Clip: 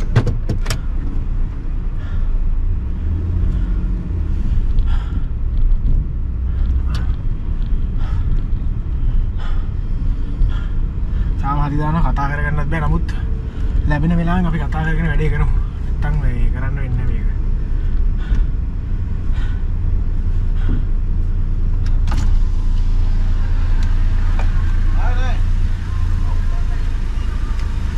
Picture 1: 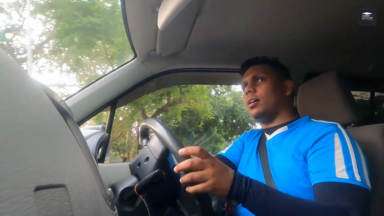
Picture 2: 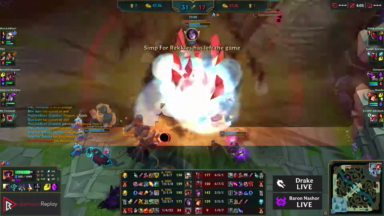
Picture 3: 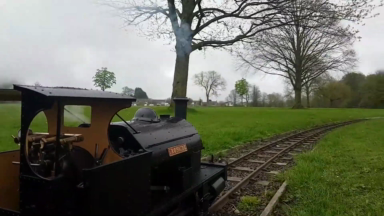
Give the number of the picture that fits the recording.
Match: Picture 1